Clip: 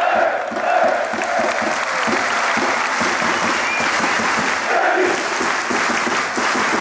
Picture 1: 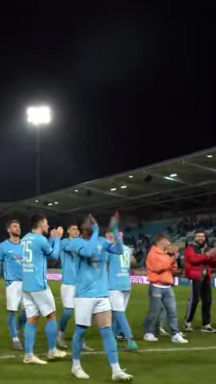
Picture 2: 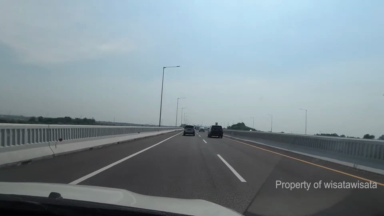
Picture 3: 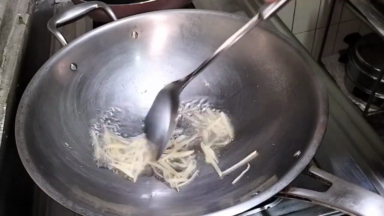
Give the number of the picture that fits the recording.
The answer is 1